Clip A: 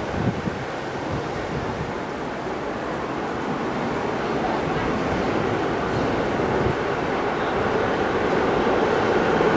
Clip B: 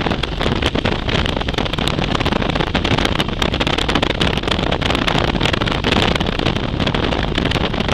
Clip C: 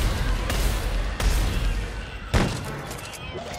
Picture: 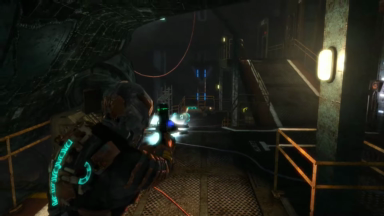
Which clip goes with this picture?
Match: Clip C